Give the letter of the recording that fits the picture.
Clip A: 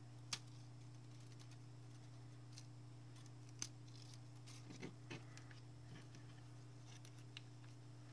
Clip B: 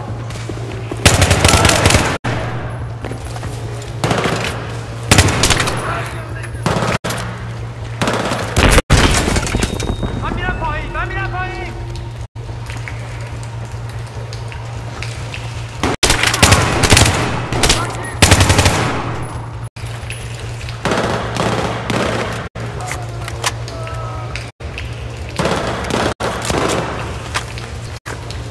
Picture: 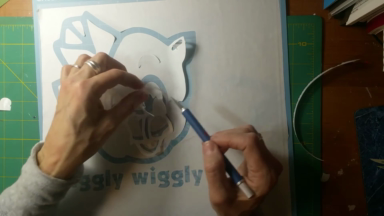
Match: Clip A